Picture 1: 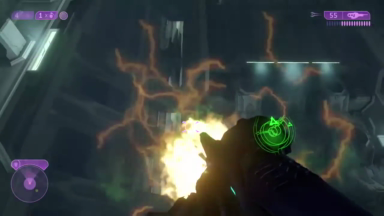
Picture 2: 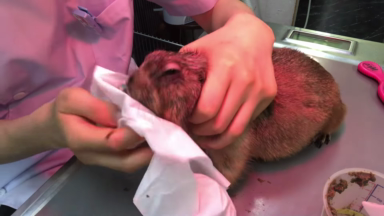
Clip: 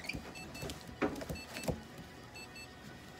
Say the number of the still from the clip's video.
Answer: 2